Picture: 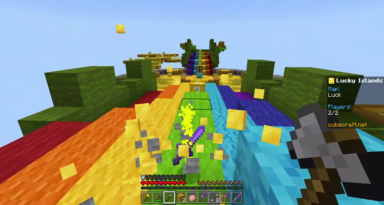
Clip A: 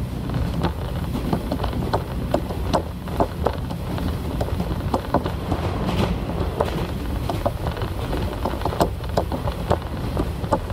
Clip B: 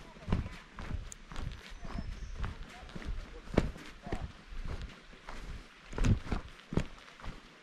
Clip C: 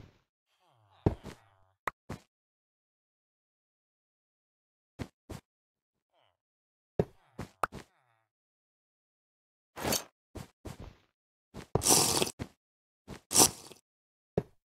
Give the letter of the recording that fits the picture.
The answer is C